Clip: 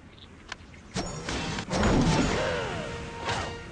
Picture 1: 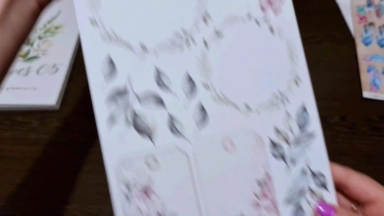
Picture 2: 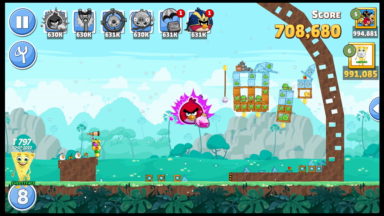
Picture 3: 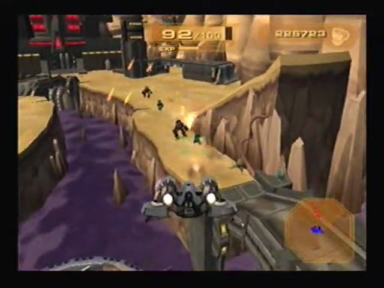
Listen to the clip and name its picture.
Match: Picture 2